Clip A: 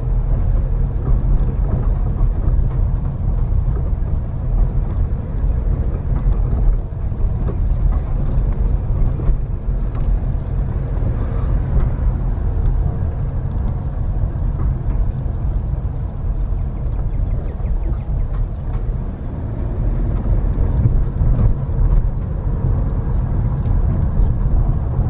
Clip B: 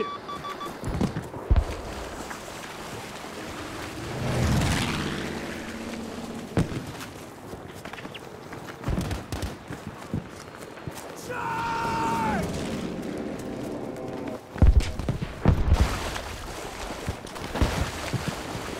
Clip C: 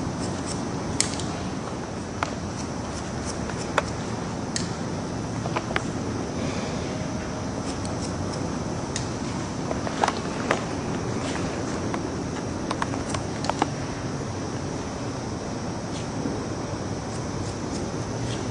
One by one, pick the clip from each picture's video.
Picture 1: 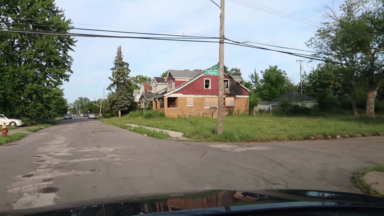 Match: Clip A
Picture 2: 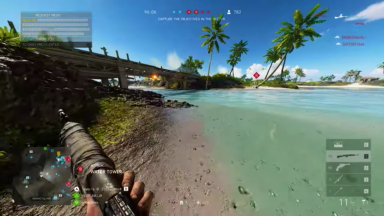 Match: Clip B